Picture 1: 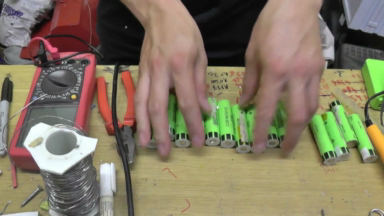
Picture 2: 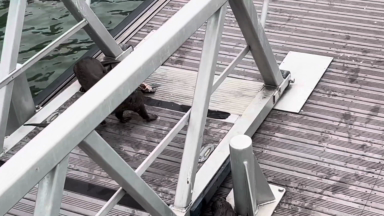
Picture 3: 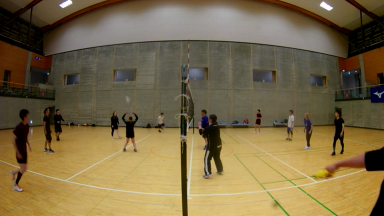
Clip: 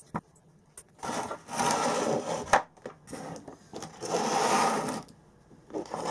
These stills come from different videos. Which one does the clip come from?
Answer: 1